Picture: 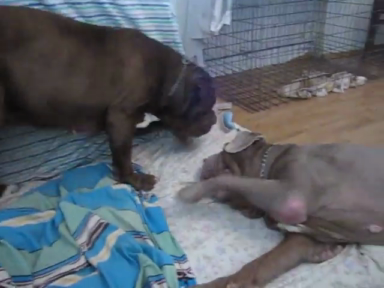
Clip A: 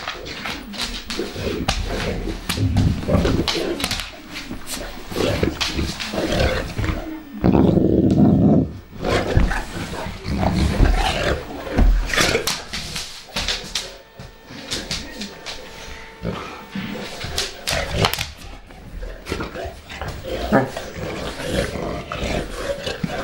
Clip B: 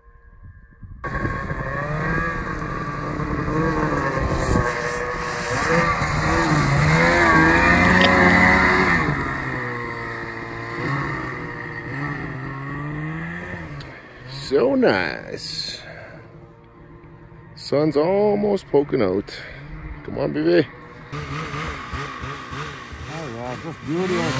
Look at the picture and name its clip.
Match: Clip A